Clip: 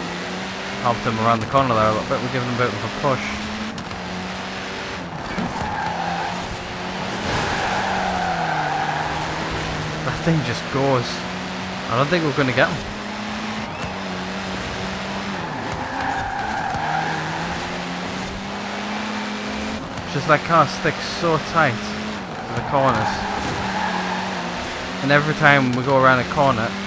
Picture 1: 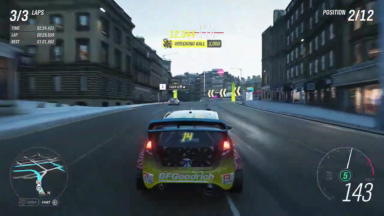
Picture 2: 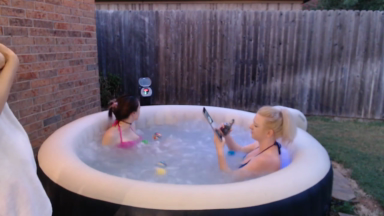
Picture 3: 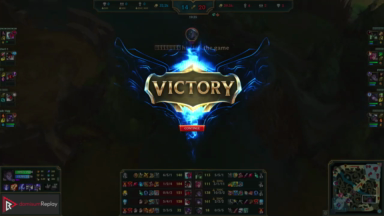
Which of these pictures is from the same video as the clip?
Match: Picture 1